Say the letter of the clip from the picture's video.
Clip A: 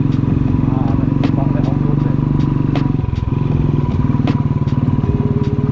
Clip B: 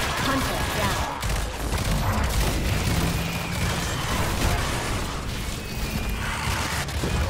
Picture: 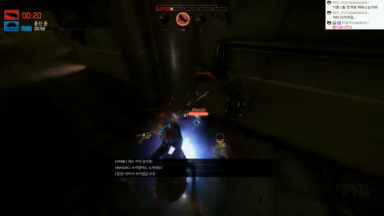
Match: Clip B